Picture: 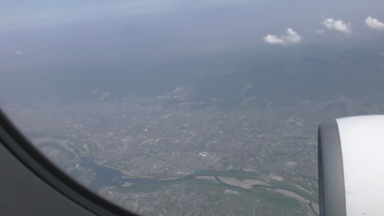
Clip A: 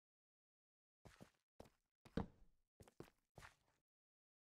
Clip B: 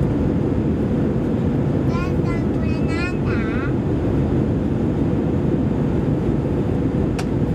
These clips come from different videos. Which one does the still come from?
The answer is B